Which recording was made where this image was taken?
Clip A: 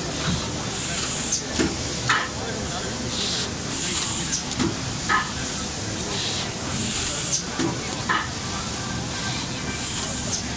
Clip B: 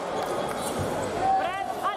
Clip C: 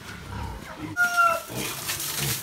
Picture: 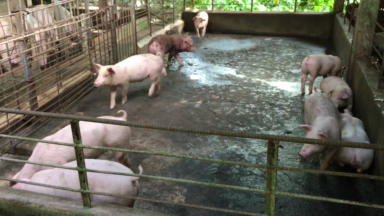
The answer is C